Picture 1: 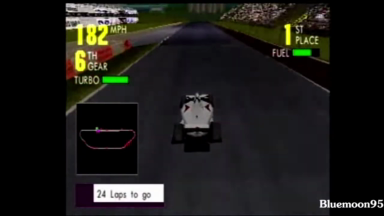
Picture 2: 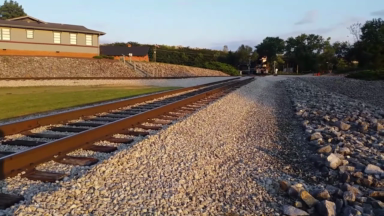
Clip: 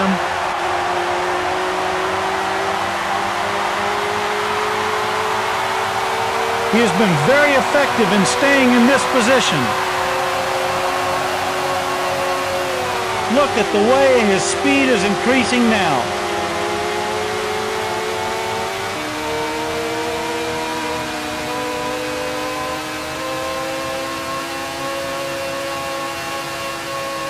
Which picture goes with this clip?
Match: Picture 1